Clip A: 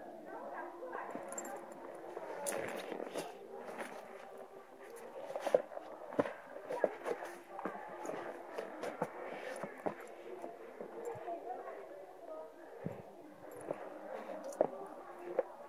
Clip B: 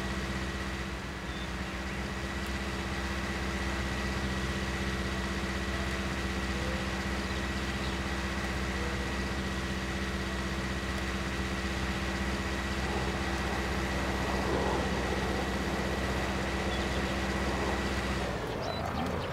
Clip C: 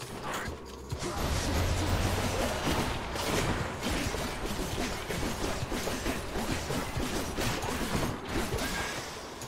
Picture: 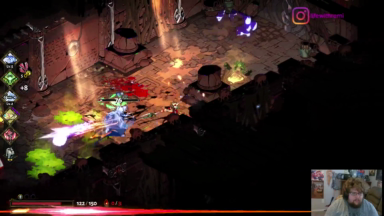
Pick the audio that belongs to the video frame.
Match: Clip C